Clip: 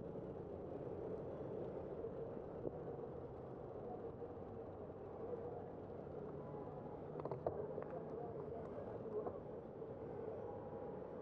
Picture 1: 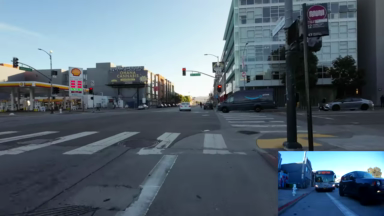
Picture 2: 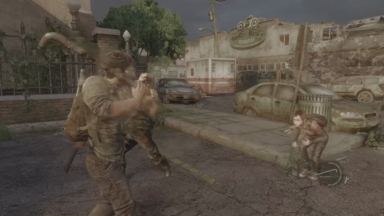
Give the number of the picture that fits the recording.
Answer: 1